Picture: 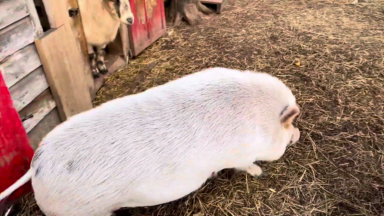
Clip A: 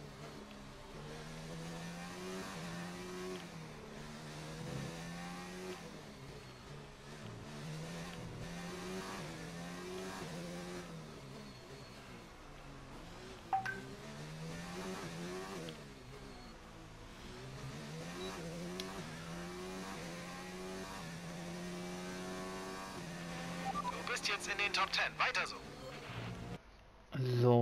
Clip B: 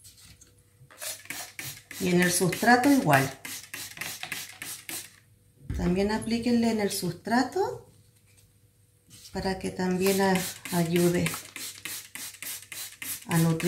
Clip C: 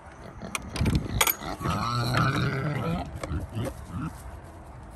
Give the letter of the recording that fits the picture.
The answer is C